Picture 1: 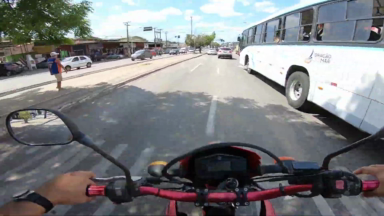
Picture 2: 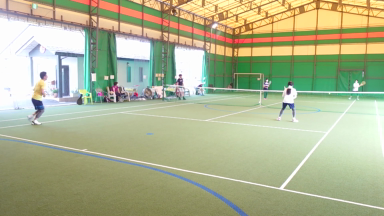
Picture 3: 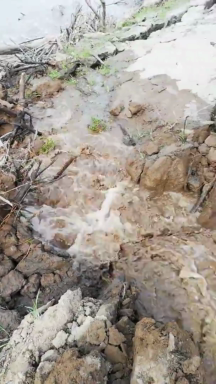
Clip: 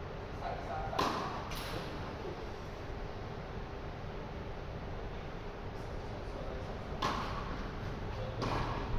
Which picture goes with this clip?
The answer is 2